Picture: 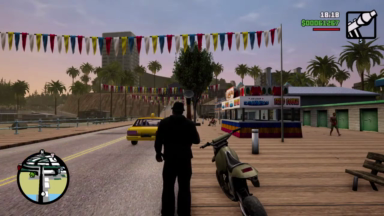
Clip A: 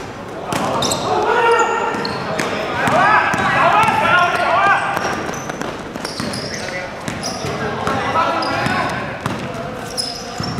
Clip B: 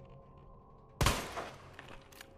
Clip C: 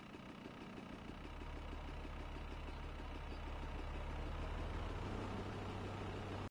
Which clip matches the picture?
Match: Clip C